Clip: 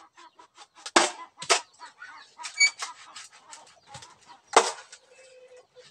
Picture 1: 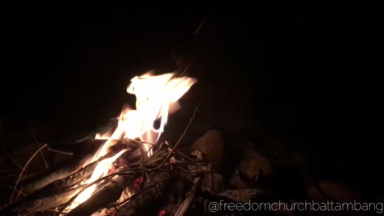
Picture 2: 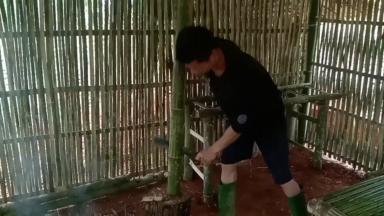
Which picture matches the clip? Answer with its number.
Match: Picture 2